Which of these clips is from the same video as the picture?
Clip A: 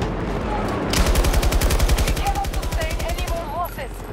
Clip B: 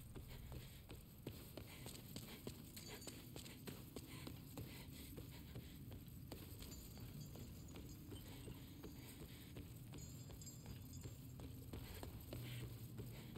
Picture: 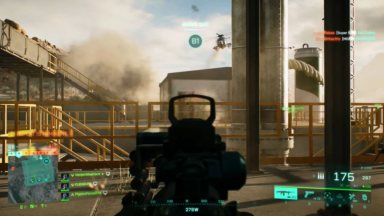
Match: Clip A